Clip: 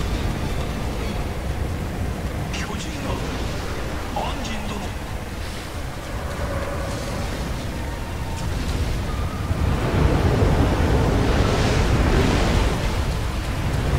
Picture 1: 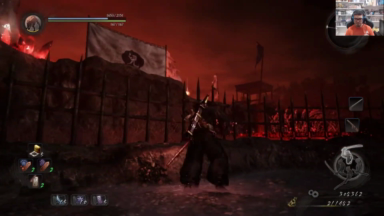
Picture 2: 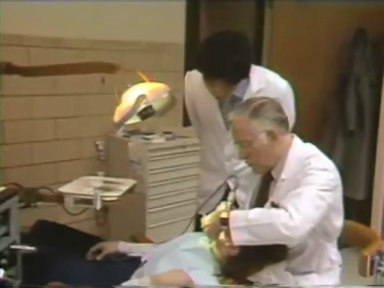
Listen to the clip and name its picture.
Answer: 1